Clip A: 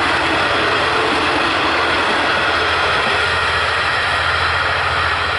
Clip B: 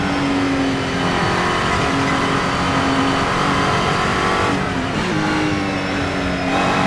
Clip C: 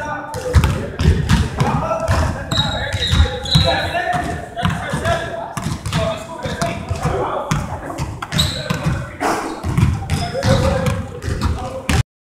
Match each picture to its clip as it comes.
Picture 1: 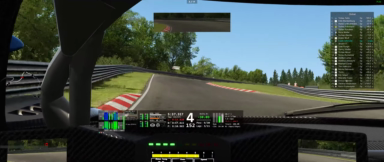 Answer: B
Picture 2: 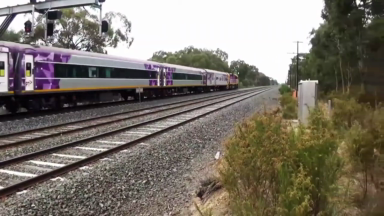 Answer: A